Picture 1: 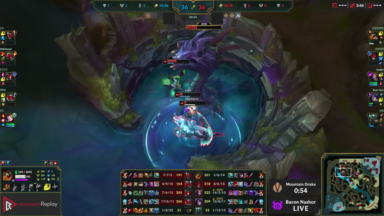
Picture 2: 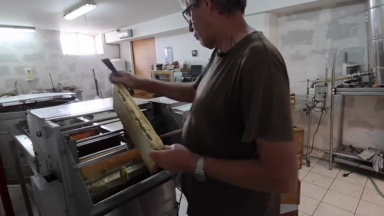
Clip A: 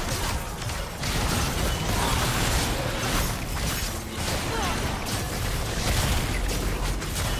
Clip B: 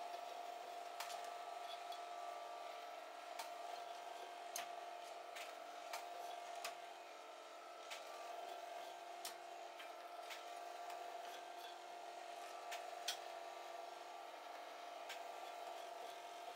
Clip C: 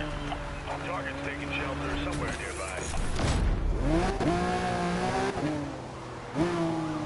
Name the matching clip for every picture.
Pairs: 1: A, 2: B